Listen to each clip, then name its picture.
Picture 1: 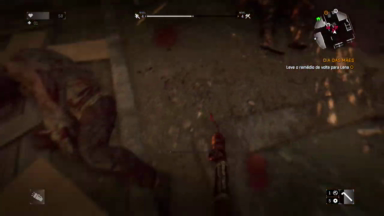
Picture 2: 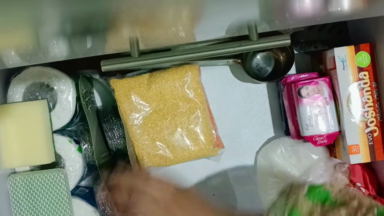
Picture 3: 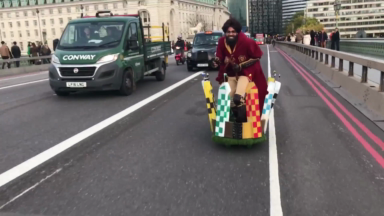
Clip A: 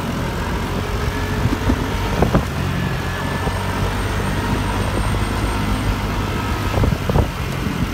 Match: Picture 3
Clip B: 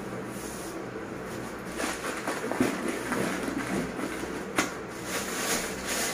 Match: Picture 2